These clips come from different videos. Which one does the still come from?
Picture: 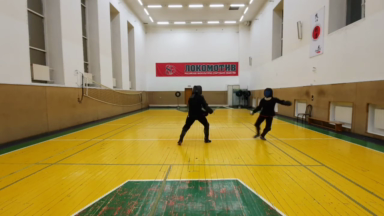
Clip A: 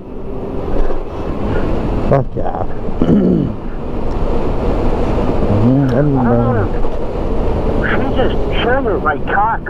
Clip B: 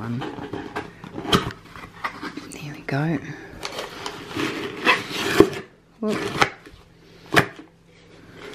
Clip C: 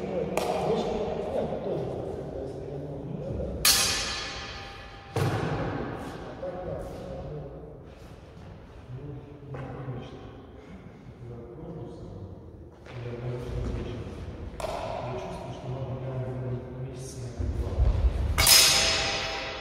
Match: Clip C